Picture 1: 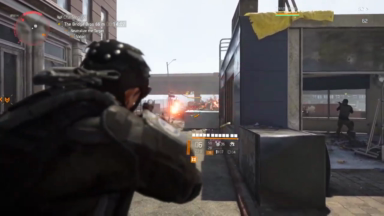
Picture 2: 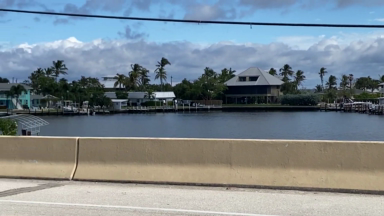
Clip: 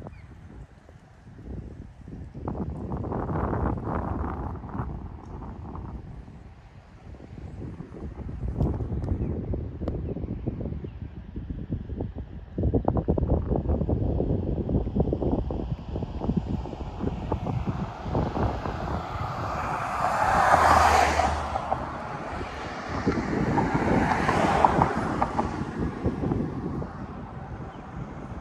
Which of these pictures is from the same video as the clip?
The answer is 2